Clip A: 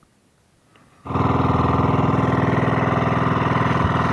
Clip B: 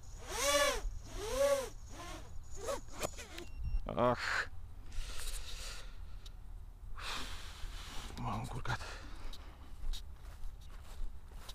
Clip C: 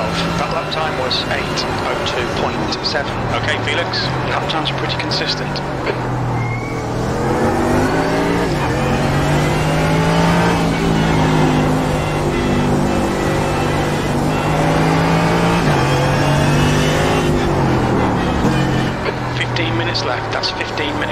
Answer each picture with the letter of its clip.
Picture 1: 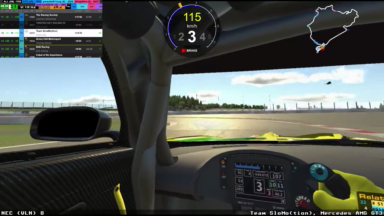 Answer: C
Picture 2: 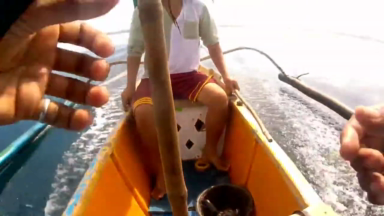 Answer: A